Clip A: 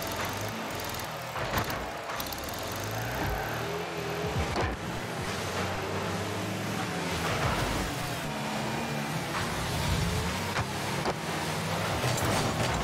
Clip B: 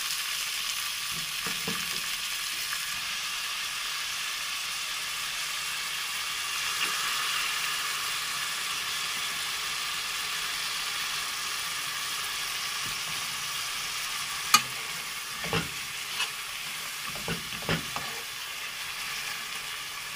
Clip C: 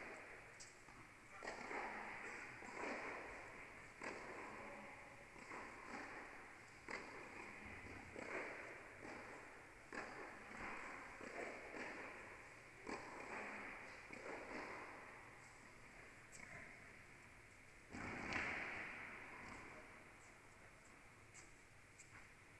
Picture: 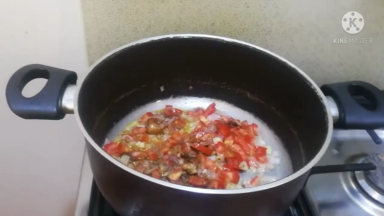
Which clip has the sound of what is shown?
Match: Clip B